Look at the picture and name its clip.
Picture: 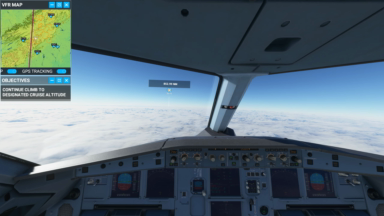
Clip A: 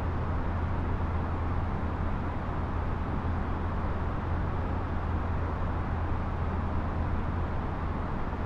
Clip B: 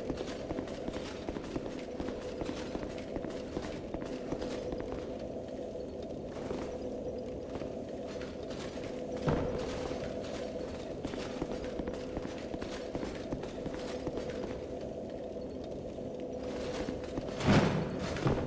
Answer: A